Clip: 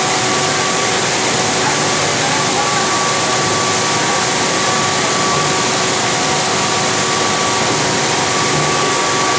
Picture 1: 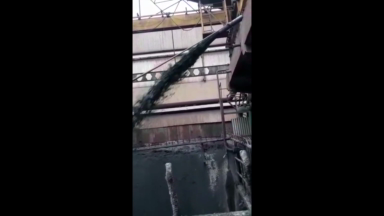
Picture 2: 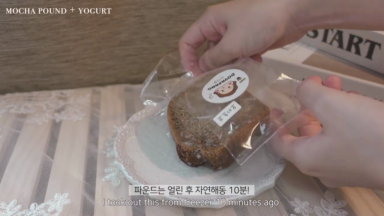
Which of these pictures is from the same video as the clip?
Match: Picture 1